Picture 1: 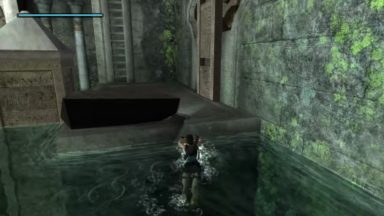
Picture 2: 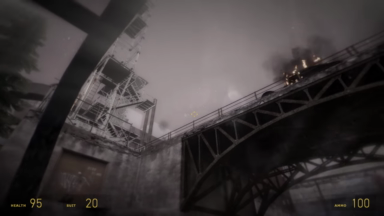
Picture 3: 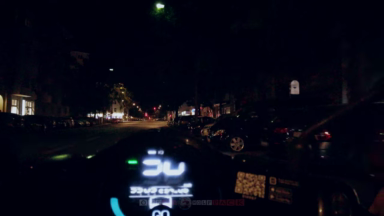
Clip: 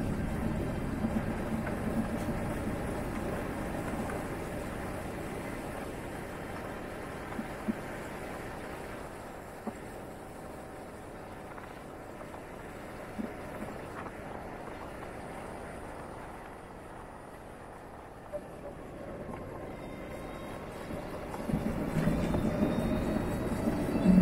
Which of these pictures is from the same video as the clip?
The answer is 3